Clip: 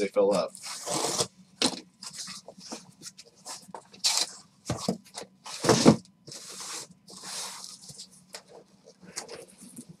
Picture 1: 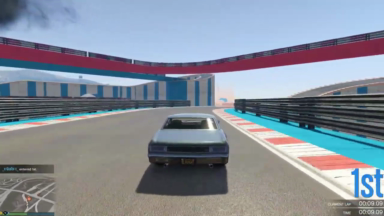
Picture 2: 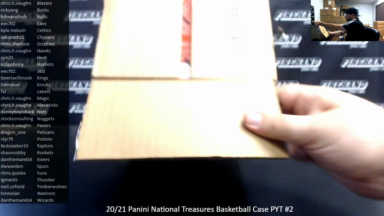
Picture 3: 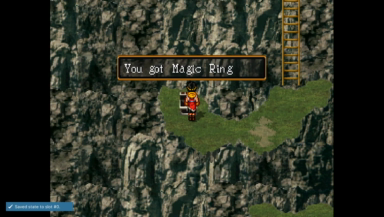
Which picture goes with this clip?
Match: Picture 2